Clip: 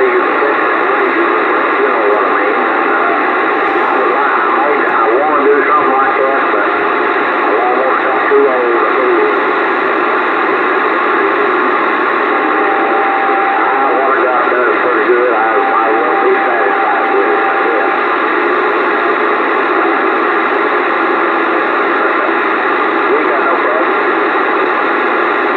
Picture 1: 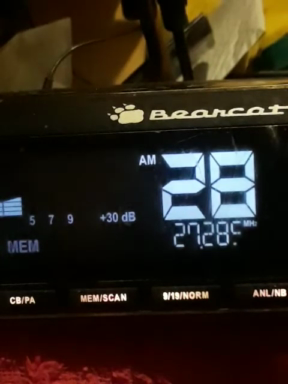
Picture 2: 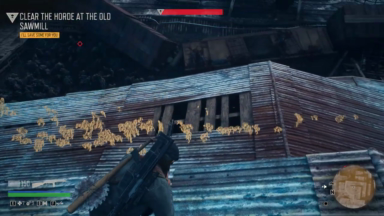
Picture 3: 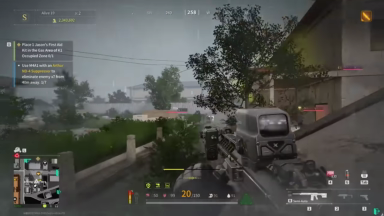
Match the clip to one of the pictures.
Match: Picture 1